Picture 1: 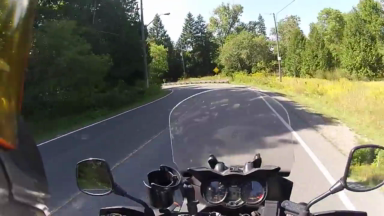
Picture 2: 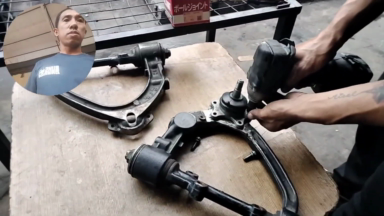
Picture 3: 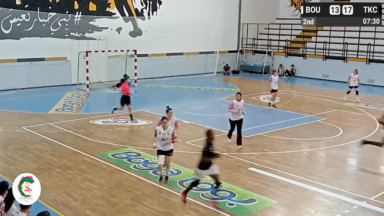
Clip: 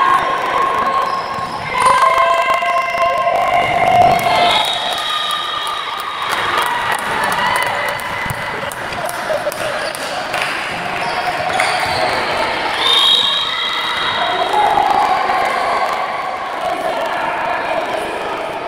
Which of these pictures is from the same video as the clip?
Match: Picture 3